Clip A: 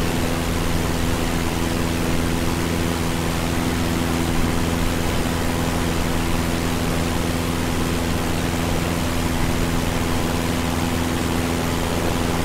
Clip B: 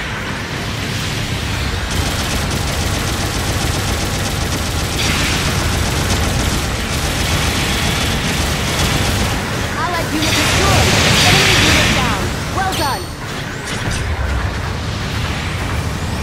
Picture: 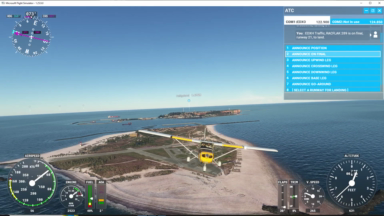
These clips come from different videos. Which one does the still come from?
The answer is A